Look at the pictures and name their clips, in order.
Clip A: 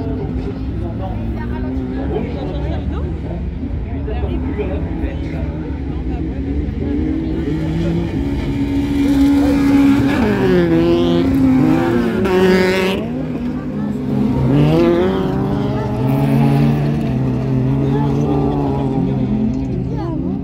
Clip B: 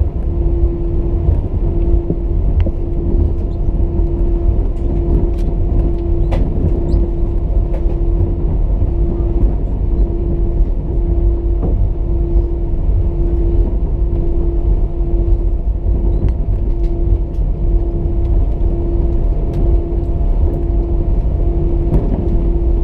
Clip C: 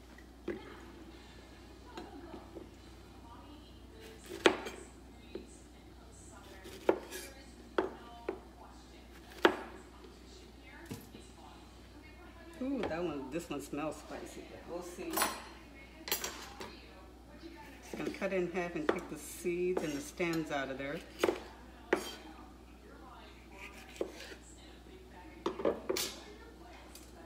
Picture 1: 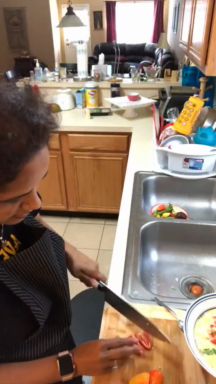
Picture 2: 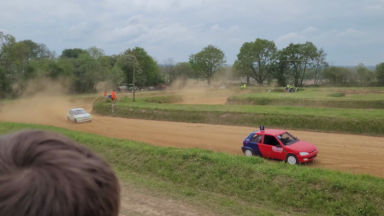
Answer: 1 C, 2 A